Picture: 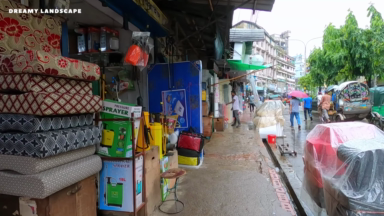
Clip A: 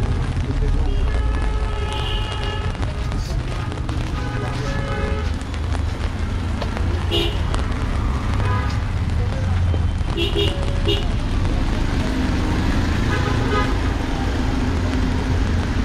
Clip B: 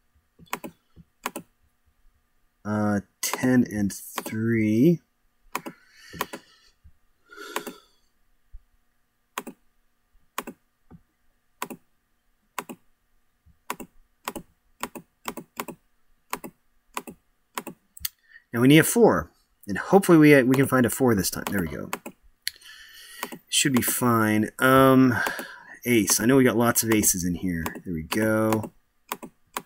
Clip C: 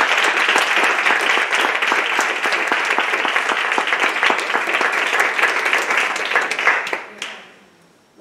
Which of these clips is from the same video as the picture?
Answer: A